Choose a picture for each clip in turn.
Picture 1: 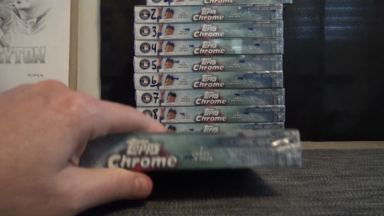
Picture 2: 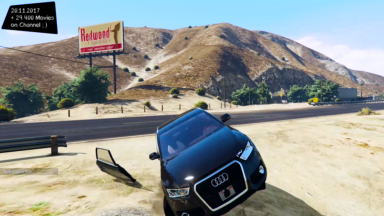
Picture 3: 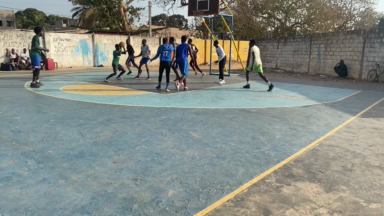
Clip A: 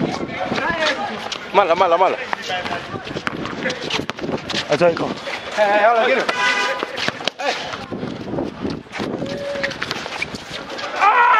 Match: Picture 3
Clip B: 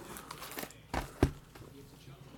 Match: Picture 1